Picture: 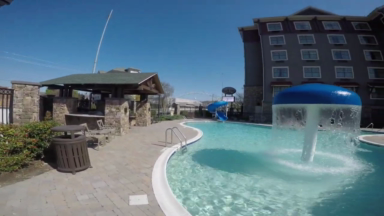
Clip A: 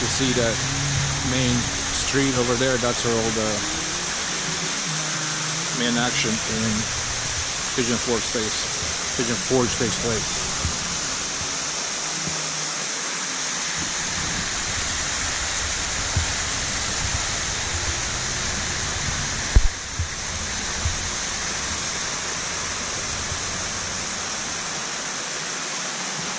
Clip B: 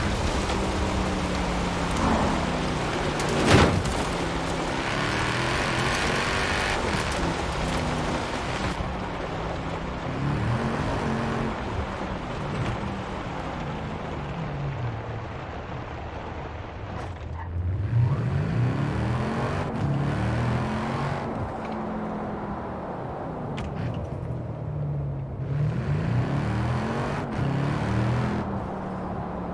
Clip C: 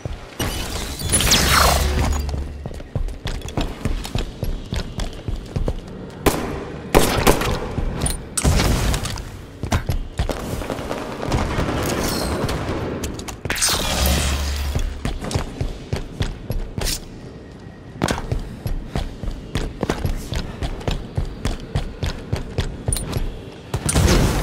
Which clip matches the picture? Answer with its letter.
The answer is A